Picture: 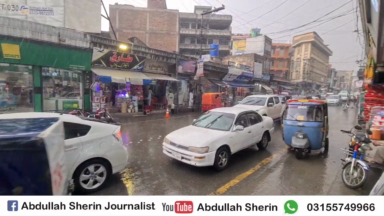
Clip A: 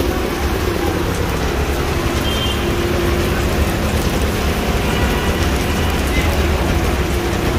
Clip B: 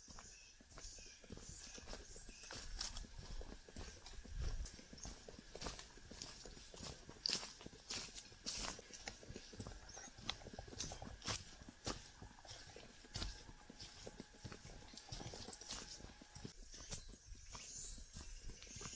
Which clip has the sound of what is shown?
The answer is A